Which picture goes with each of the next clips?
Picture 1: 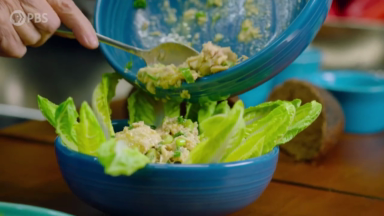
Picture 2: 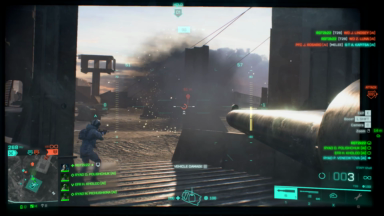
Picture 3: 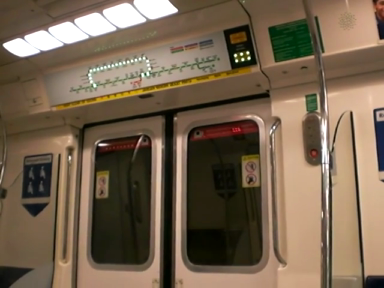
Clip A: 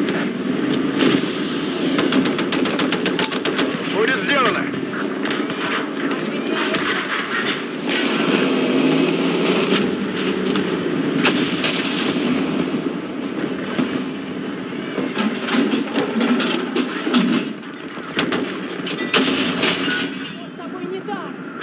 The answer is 2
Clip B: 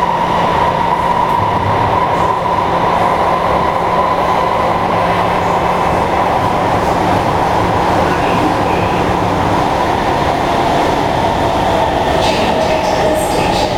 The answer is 3